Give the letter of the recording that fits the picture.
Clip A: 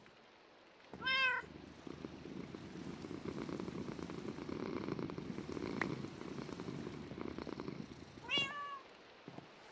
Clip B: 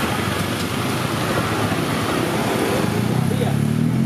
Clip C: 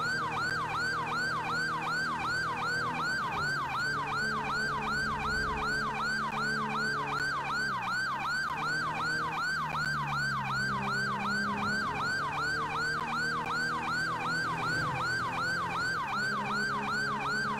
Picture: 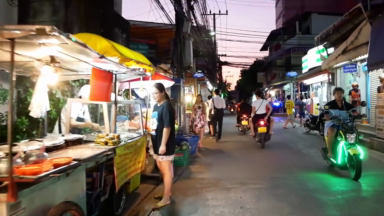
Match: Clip B